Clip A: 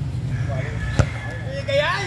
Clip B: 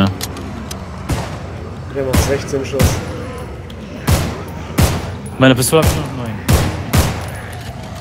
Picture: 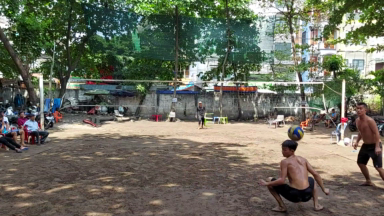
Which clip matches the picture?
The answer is A